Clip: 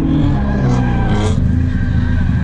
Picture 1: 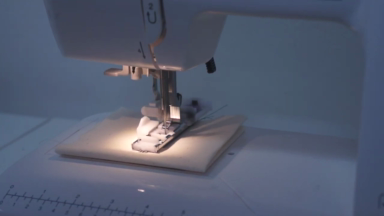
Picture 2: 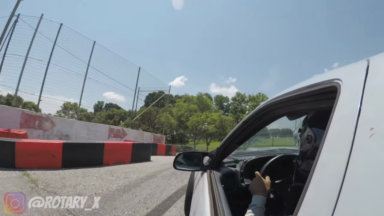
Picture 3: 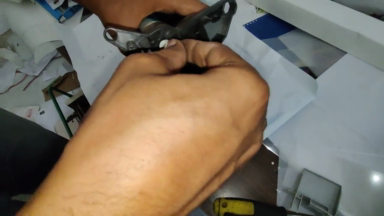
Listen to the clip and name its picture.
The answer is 2